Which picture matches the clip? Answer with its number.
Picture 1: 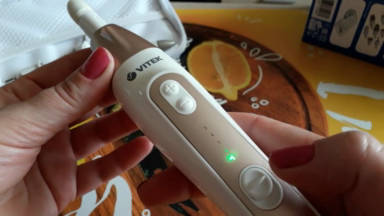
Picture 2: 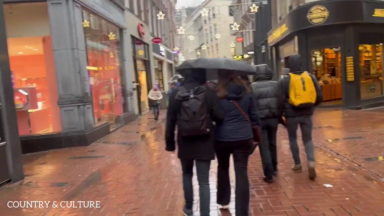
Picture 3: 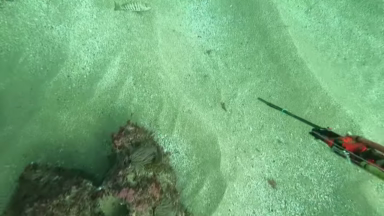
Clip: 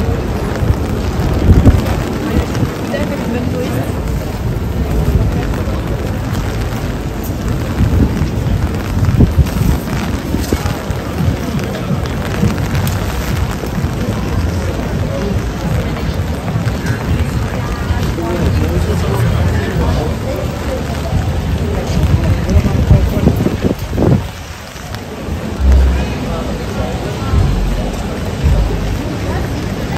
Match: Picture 2